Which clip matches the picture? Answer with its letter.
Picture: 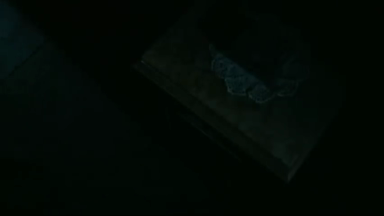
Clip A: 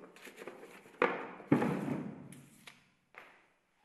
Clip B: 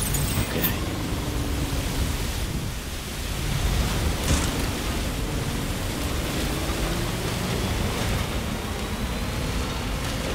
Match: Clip A